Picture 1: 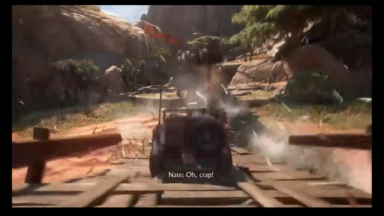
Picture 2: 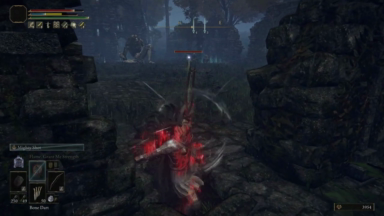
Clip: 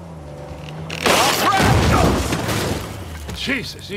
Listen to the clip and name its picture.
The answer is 1